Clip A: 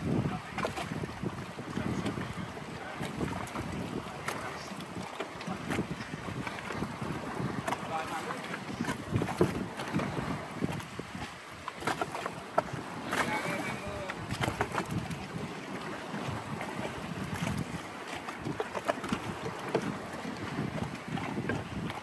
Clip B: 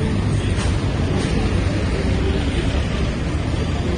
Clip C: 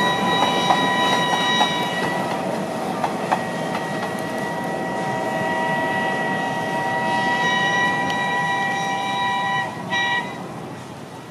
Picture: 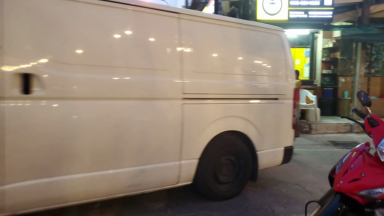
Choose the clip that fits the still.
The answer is B